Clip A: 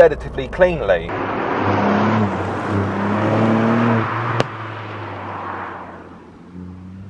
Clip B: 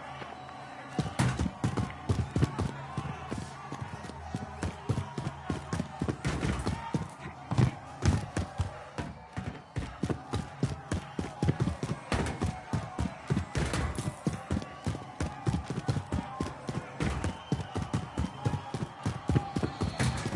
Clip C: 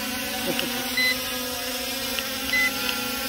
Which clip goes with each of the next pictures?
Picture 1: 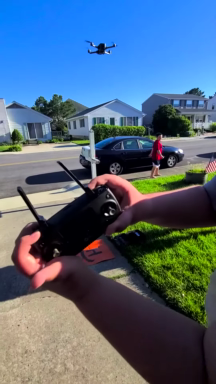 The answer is C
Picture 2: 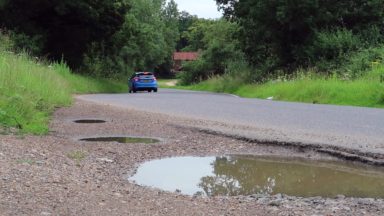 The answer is A